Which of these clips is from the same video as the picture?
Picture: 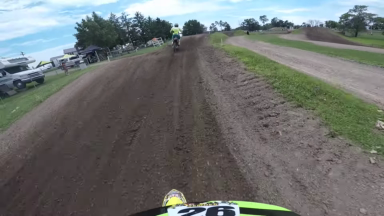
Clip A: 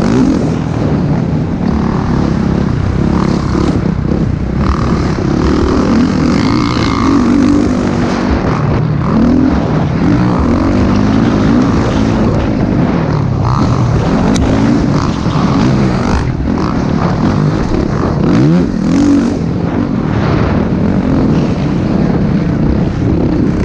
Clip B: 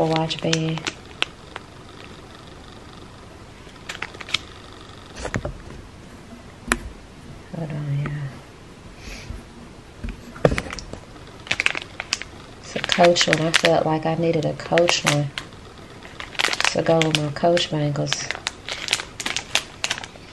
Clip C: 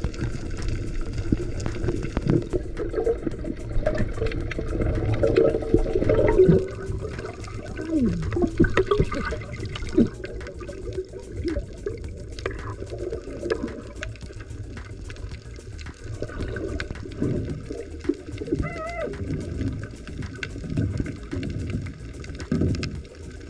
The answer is A